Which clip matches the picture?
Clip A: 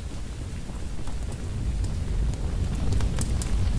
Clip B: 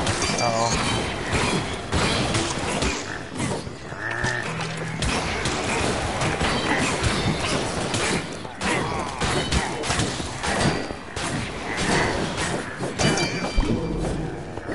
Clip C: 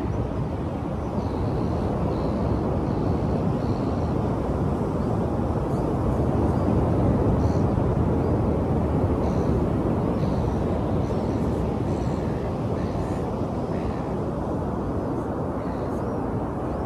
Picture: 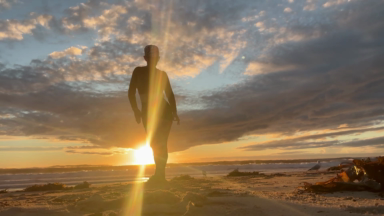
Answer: C